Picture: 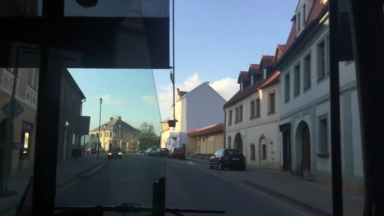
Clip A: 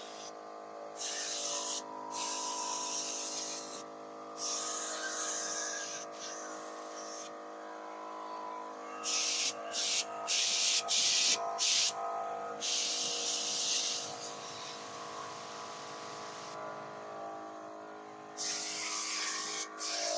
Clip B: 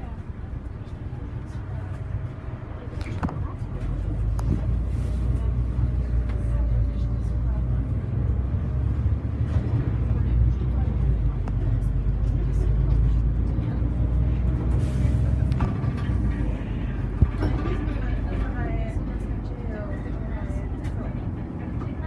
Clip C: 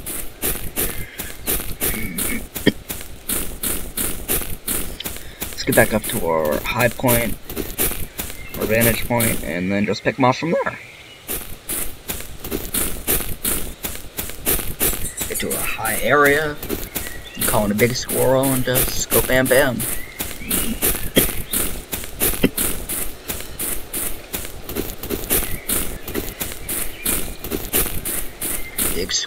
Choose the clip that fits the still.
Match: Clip B